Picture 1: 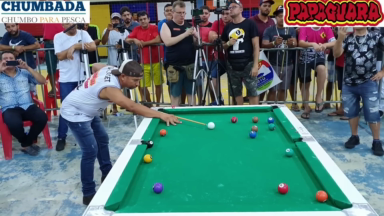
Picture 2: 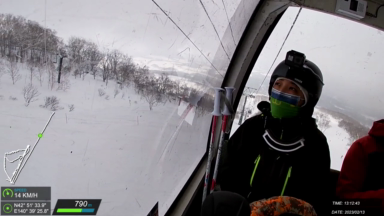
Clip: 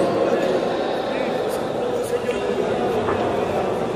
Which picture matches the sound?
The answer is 1